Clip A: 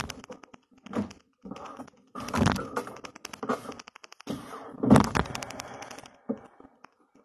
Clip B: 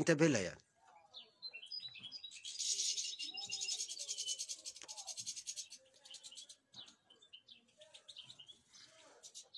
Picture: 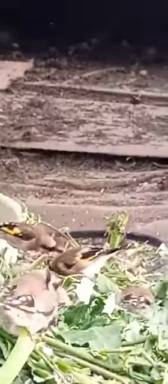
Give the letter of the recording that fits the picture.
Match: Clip B